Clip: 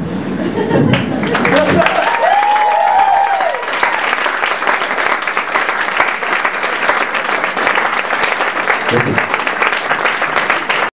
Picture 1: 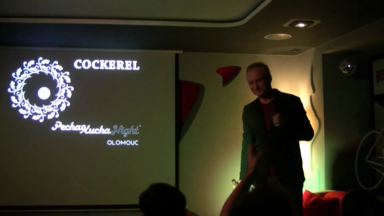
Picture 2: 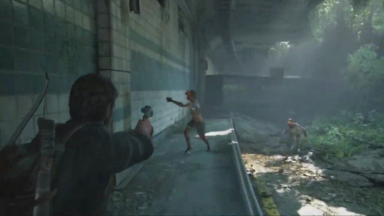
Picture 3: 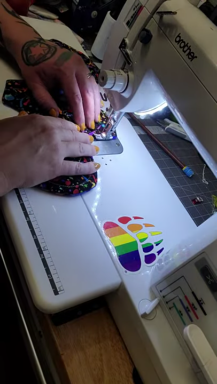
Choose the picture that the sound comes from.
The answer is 1